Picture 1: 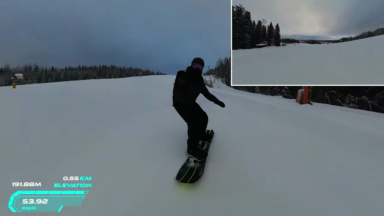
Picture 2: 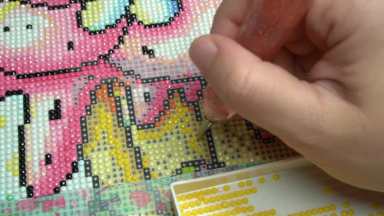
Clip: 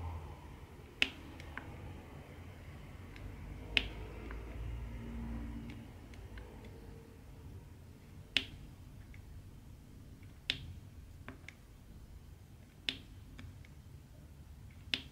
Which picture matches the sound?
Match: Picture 2